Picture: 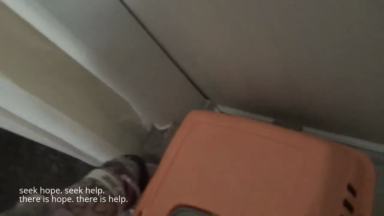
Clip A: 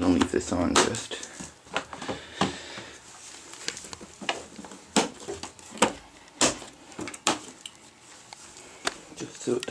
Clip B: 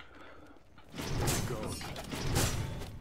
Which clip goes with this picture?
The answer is A